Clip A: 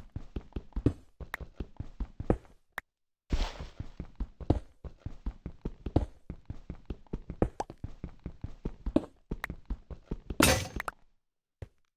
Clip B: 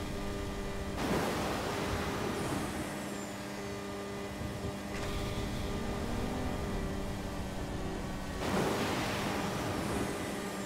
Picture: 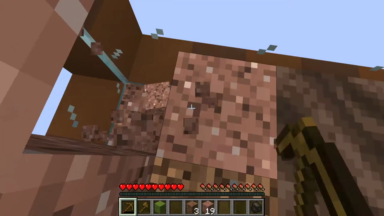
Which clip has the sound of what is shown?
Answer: A